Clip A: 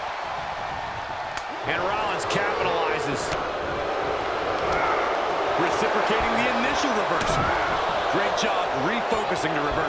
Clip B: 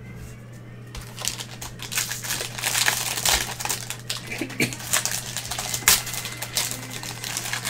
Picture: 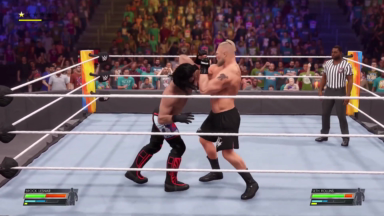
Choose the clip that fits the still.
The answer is A